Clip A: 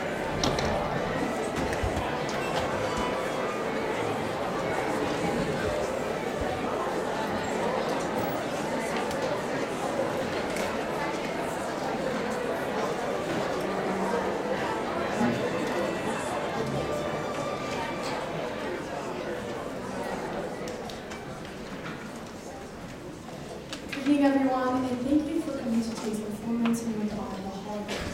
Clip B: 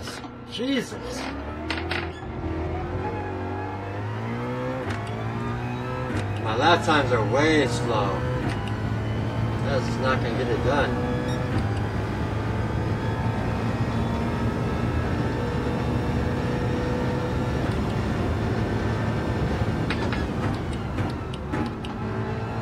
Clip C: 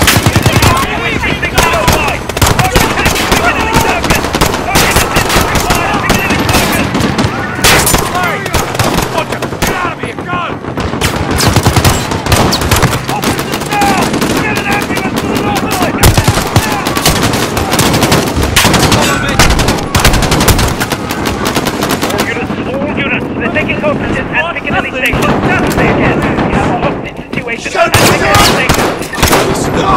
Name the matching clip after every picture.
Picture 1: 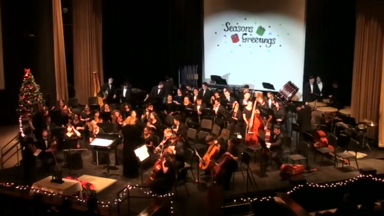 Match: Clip A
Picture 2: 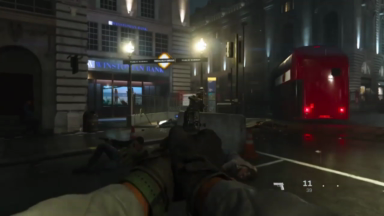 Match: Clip C